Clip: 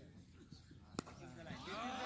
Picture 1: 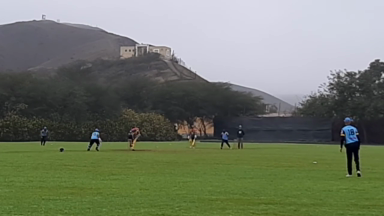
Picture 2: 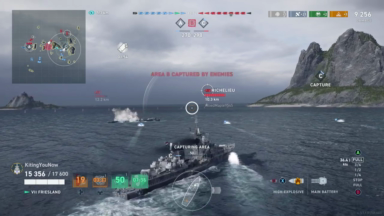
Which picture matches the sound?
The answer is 1